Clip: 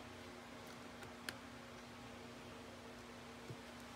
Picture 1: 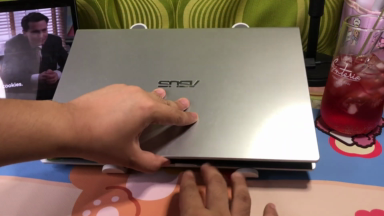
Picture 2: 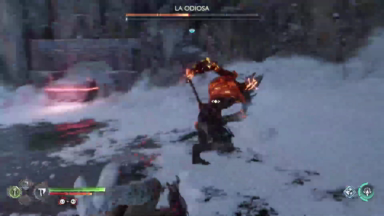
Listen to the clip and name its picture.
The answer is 1